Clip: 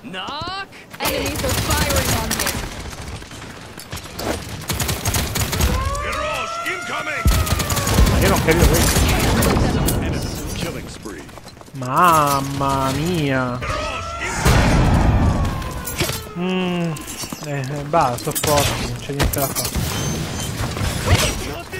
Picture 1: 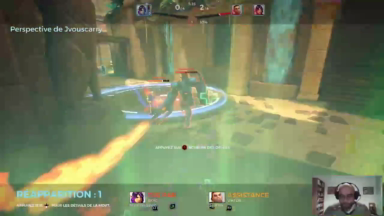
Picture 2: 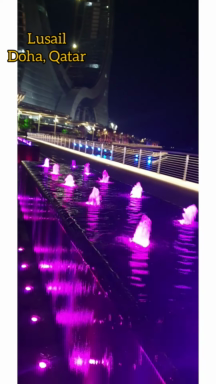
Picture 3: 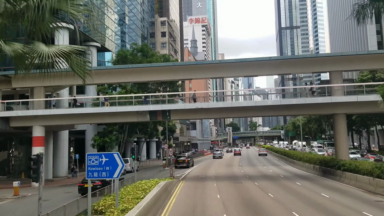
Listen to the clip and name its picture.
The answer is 1